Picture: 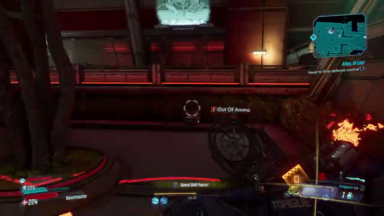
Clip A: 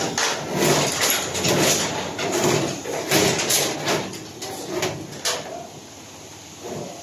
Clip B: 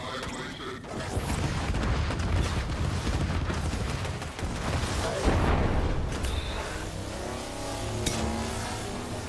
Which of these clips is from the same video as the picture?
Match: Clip B